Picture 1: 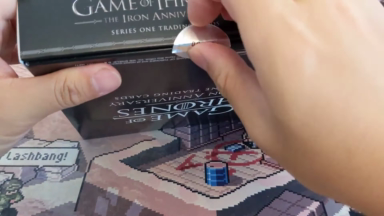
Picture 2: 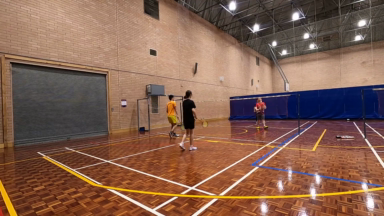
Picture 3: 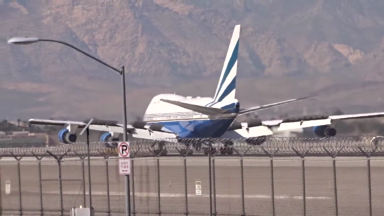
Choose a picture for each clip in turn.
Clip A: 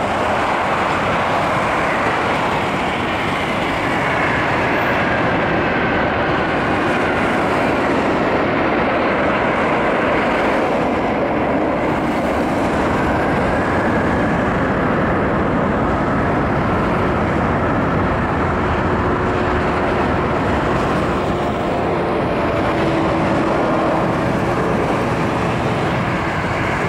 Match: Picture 3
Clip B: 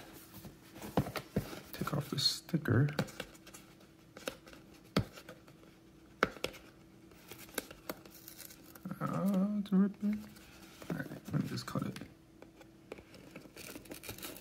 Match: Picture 1